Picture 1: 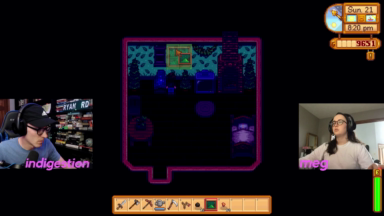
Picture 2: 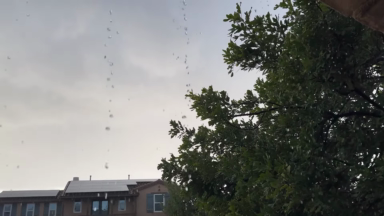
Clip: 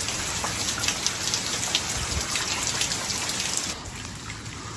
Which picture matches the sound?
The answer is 2